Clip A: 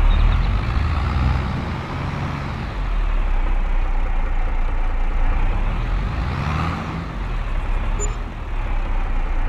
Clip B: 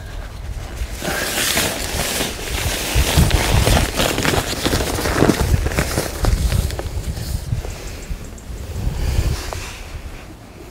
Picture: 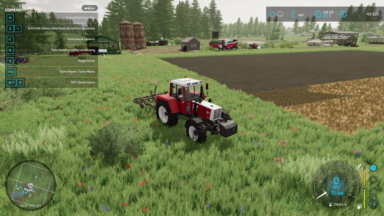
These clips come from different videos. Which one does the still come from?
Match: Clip A